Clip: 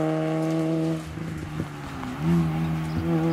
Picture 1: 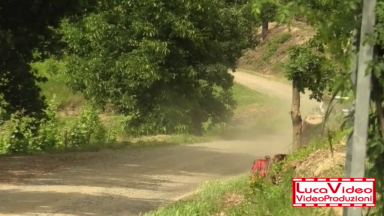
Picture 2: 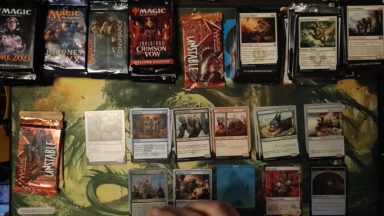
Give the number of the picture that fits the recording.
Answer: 1